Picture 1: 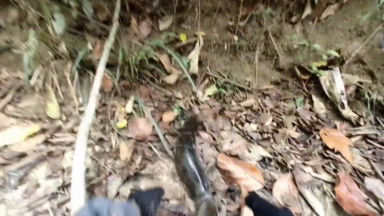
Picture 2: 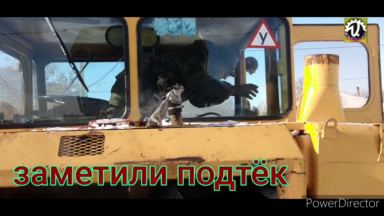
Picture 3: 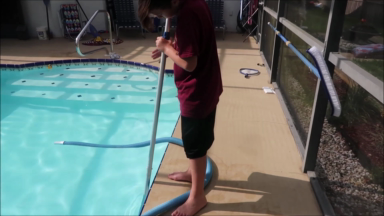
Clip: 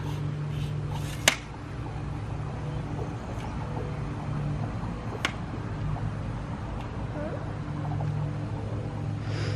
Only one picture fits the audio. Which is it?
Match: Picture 3